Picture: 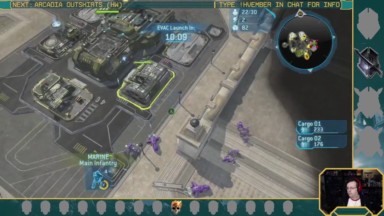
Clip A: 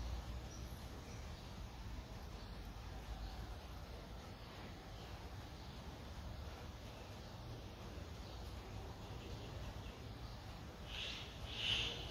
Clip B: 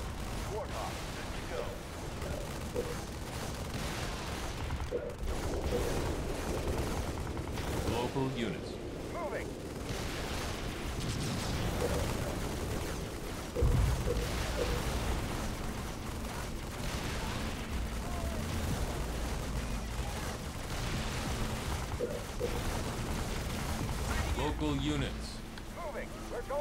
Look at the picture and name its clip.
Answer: B